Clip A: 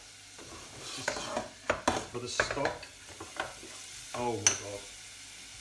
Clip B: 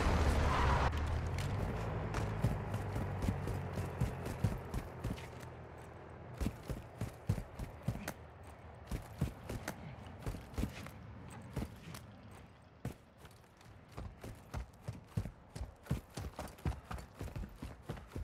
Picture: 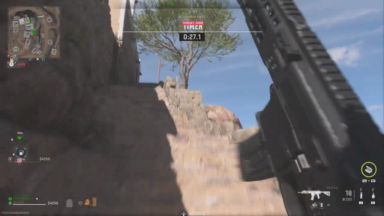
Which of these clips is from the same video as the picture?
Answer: B